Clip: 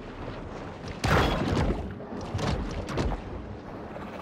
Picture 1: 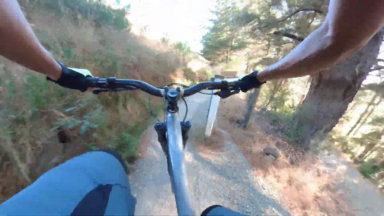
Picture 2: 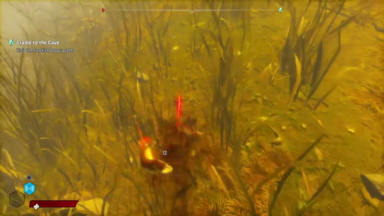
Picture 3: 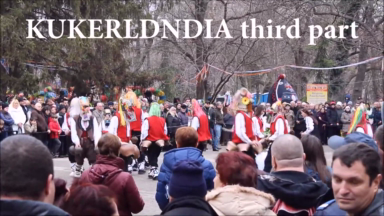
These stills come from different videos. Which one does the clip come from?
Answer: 2